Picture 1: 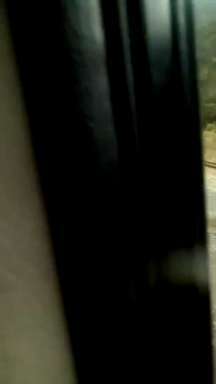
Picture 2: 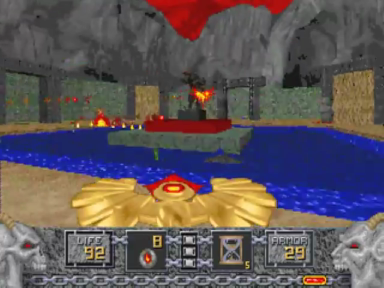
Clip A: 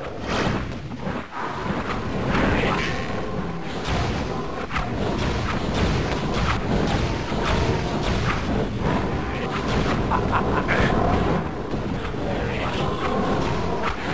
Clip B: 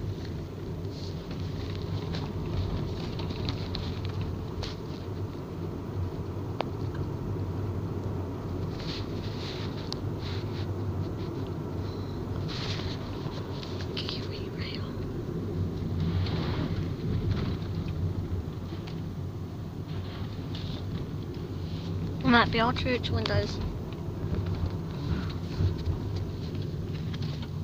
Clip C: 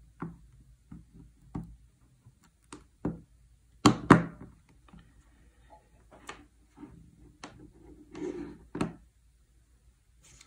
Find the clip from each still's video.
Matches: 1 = B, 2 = A